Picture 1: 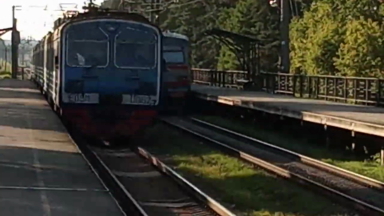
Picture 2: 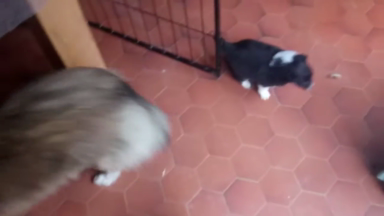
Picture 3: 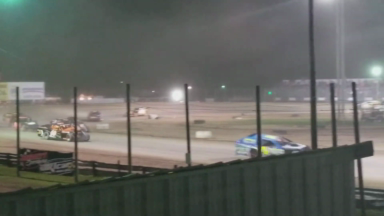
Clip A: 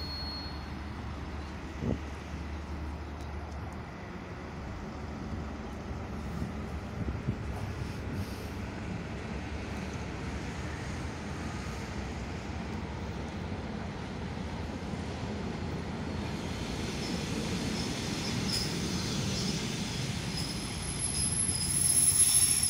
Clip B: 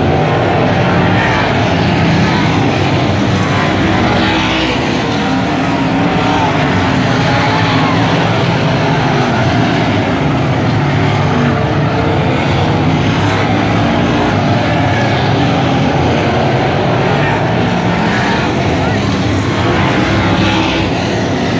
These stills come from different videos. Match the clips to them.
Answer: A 1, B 3